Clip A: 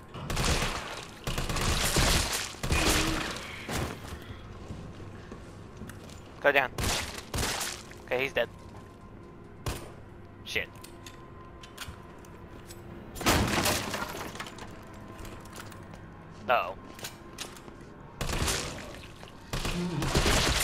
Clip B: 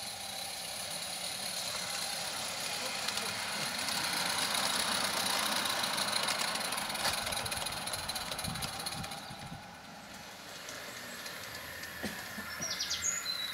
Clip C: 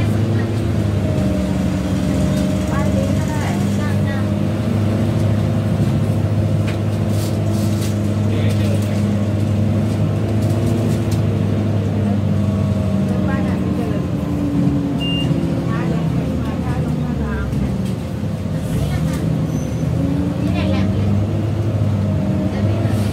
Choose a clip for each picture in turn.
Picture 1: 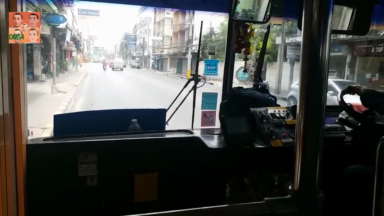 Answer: C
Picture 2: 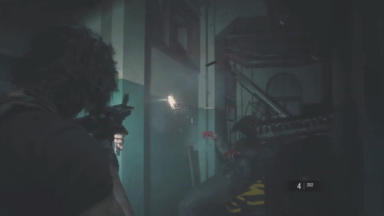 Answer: A